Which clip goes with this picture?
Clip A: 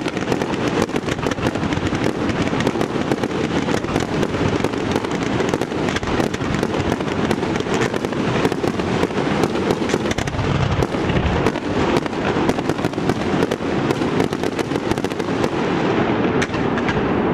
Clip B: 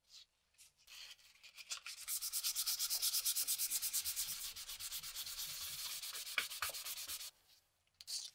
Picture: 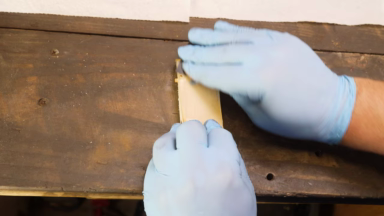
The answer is B